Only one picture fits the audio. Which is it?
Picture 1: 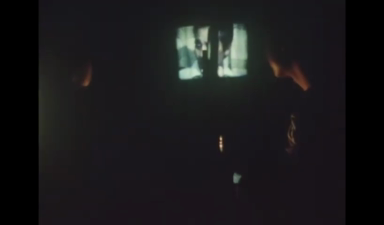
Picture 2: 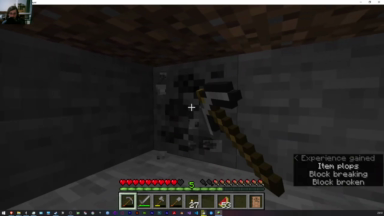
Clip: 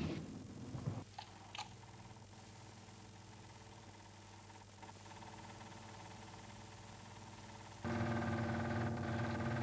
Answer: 1